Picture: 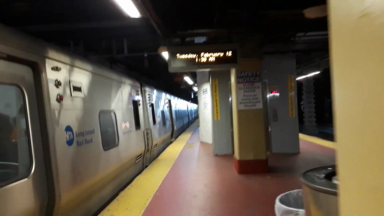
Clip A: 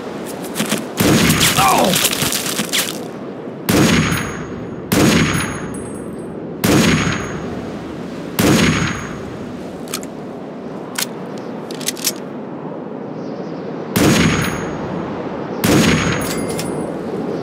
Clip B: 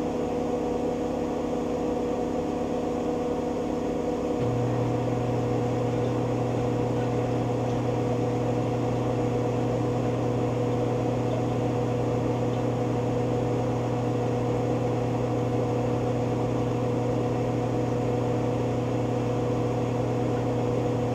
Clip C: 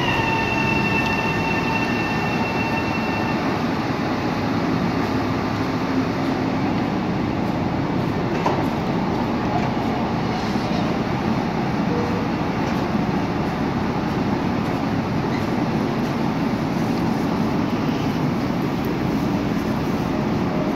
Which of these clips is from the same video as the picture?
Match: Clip C